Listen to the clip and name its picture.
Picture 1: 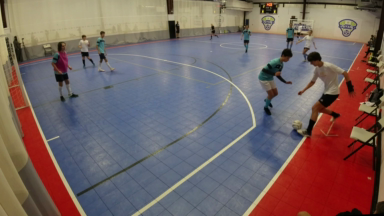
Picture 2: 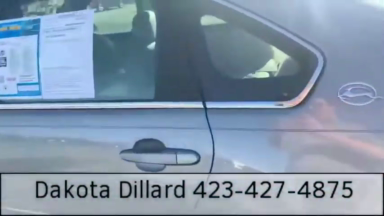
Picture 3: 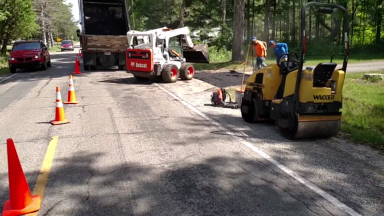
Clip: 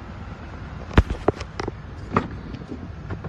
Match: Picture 2